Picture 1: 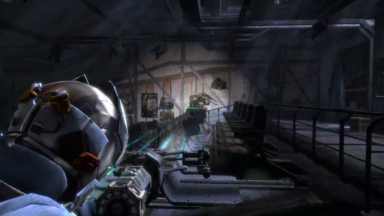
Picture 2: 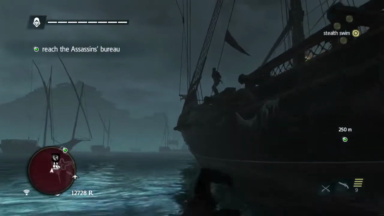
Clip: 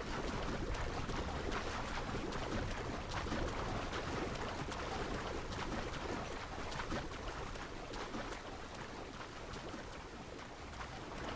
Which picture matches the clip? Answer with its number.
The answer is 2